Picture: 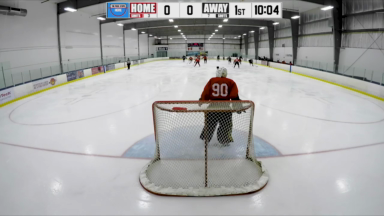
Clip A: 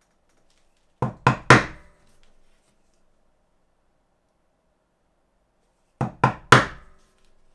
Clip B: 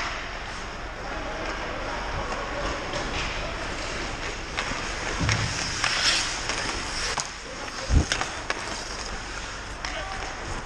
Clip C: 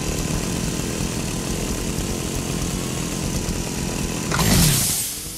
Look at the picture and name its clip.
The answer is B